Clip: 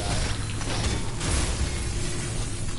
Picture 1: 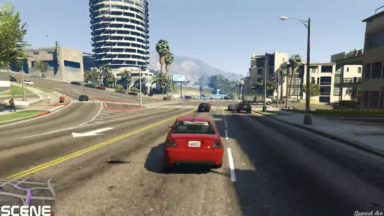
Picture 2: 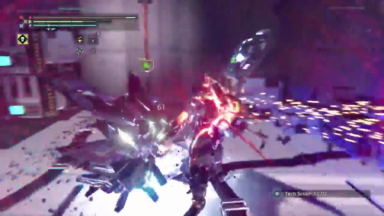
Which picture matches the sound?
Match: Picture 2